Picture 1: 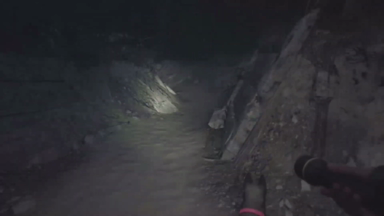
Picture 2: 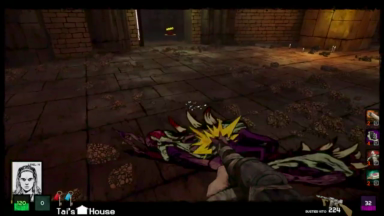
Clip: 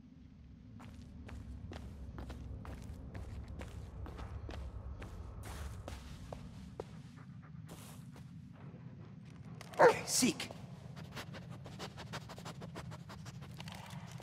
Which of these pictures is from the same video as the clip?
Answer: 1